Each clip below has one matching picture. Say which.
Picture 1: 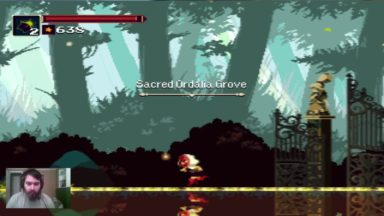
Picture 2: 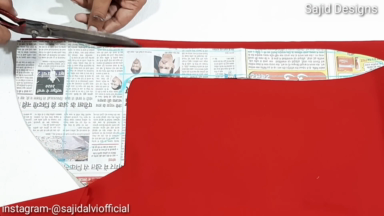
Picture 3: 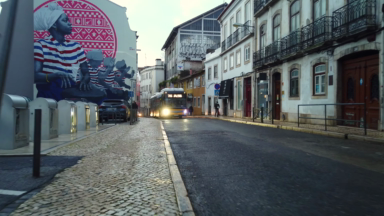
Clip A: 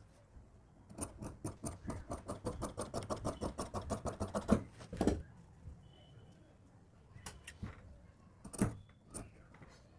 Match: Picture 2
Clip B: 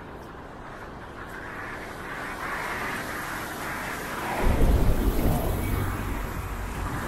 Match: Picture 3